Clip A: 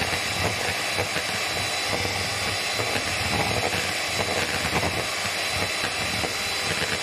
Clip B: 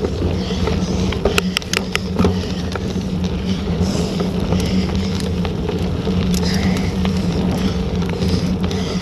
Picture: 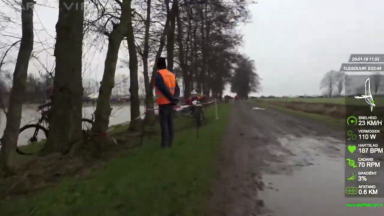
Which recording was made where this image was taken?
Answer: B